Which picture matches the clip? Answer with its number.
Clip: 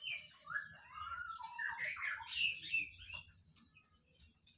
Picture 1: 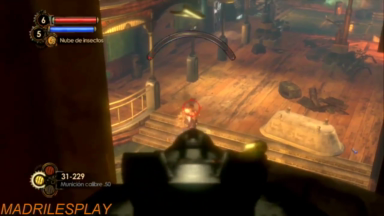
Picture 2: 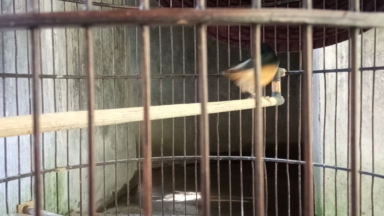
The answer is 2